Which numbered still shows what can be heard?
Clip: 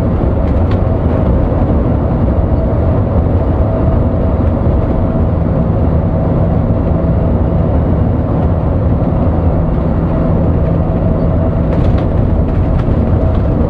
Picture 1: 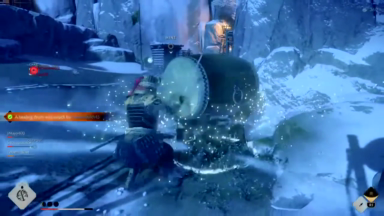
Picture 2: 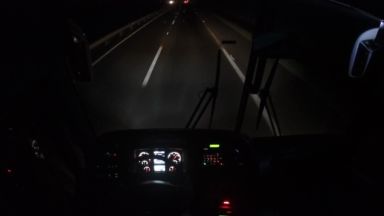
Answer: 2